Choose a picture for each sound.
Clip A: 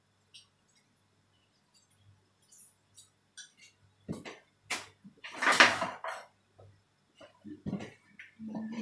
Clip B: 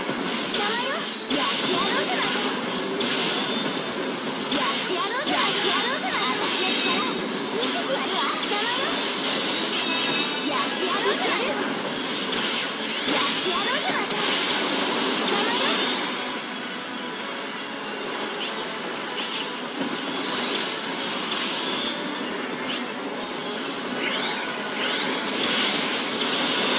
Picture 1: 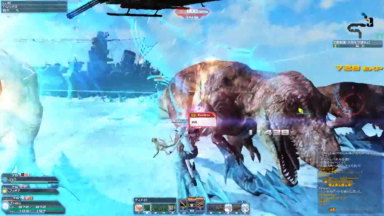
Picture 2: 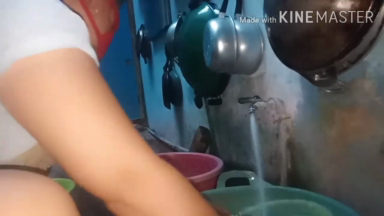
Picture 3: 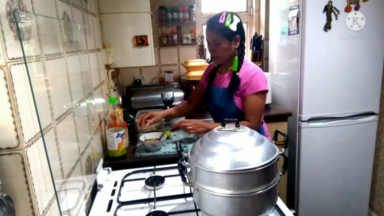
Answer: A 3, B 1